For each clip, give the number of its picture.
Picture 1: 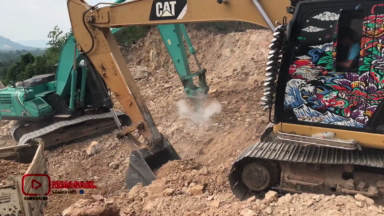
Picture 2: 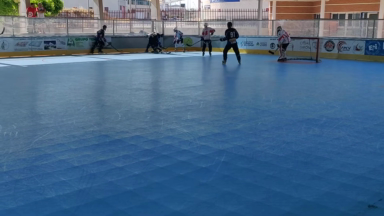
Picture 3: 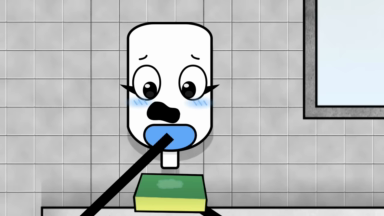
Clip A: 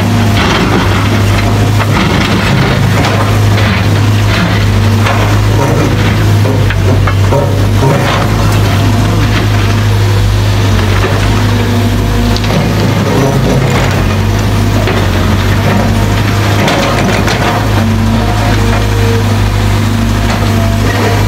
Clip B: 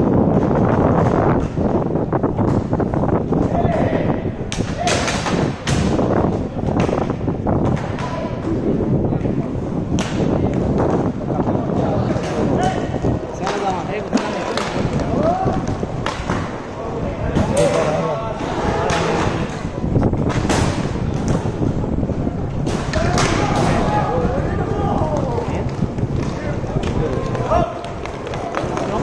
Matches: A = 1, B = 2